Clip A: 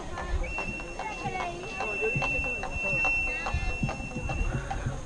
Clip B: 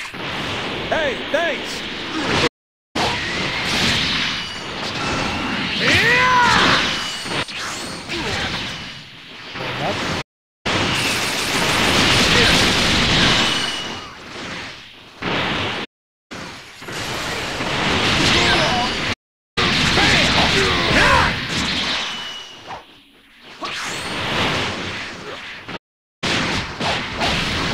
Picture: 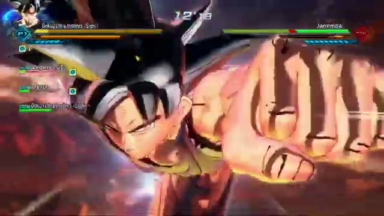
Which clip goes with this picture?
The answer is B